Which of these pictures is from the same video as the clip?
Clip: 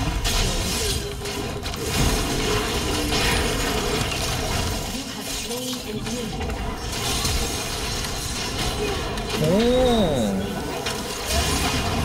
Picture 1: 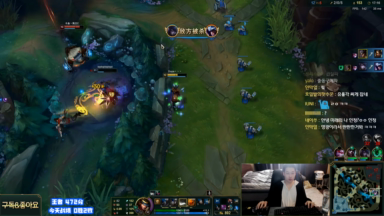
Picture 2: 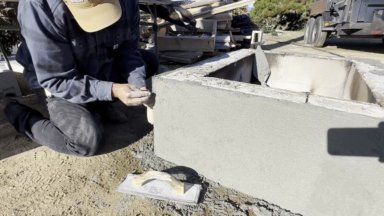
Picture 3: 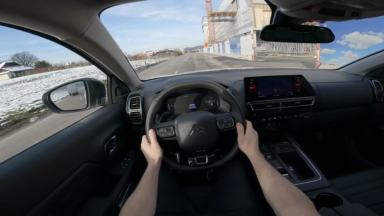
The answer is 1